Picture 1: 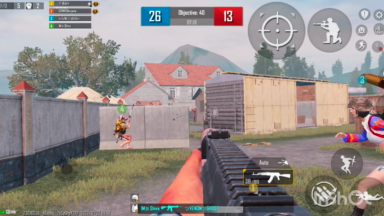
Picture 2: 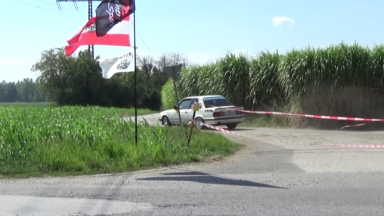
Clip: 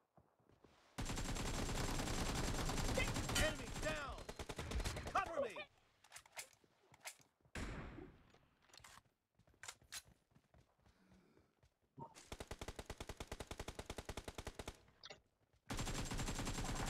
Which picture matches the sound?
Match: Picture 1